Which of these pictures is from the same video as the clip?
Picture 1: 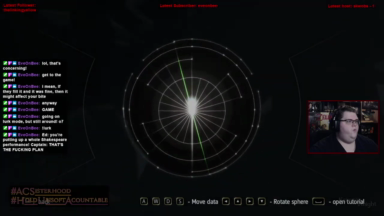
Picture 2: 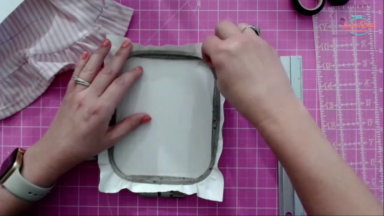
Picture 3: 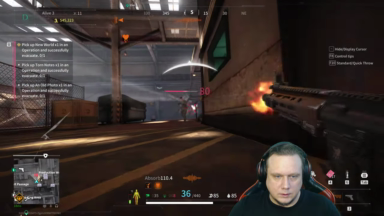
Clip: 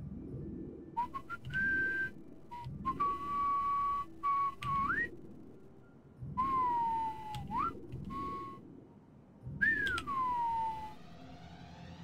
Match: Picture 1